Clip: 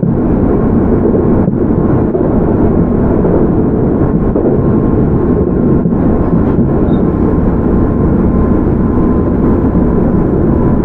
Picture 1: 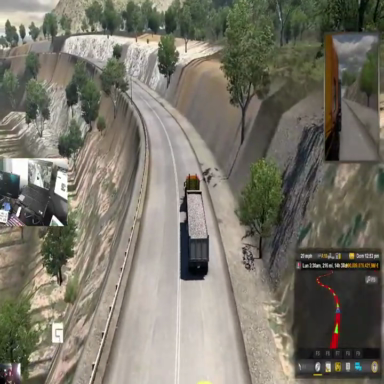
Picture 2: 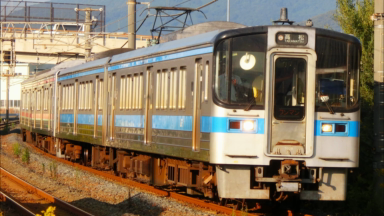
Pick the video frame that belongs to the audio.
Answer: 2